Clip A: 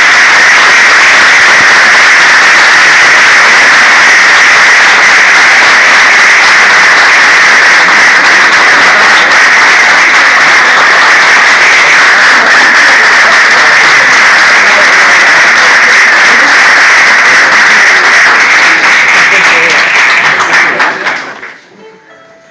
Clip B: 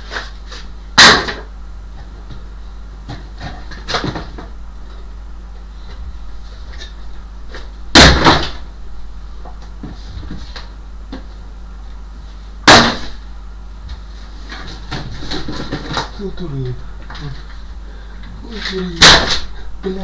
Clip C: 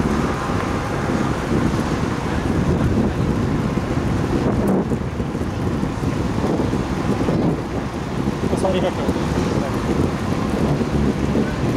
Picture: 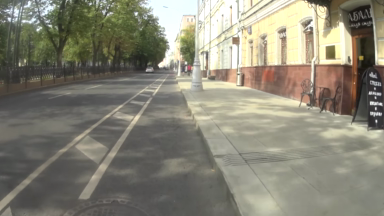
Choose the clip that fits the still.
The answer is C